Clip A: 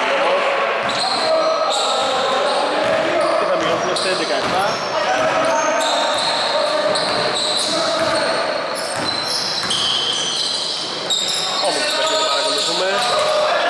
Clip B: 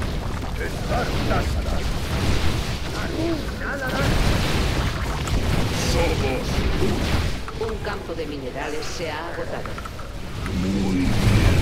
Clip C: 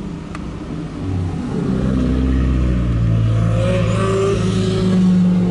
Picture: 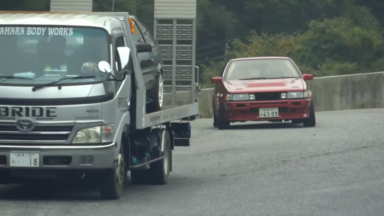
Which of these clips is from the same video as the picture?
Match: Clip C